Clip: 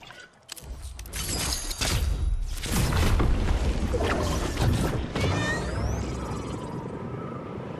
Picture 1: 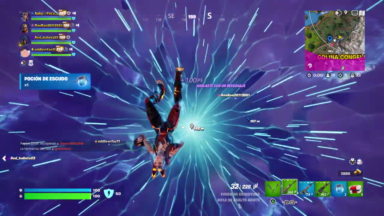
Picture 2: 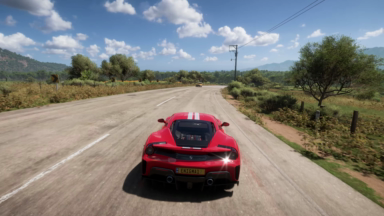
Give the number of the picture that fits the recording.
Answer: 1